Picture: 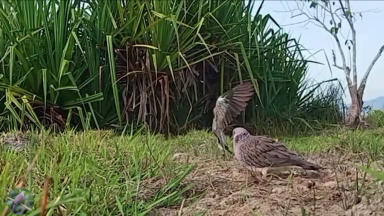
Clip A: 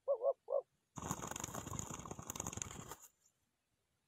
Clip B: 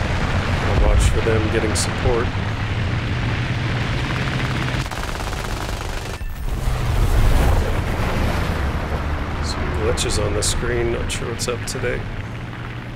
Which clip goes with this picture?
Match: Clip A